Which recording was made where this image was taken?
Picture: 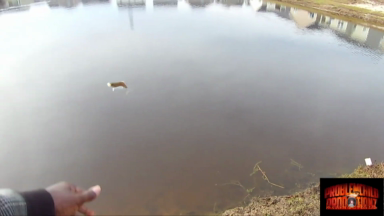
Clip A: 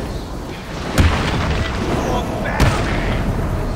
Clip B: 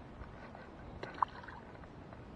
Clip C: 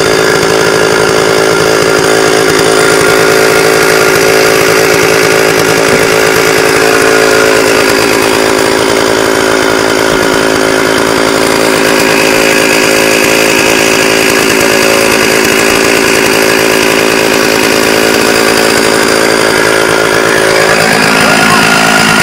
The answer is B